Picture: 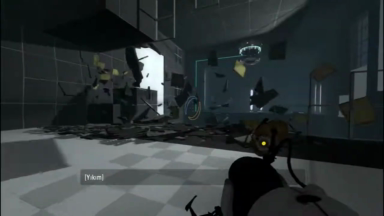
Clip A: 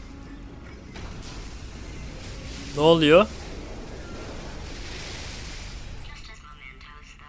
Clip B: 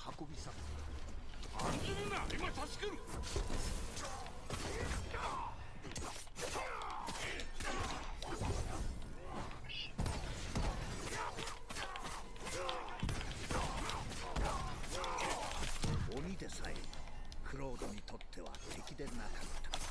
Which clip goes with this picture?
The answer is A